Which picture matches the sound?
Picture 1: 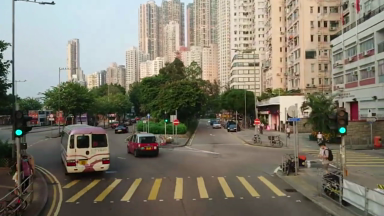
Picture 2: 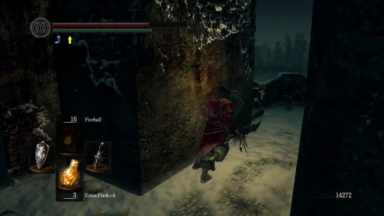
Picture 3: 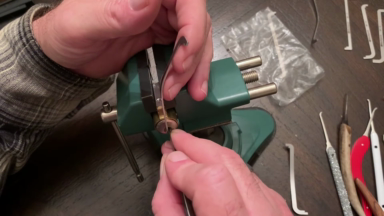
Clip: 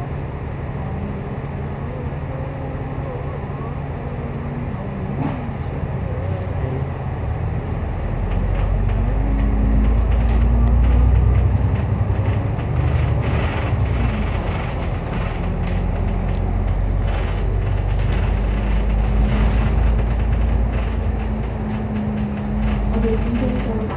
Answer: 1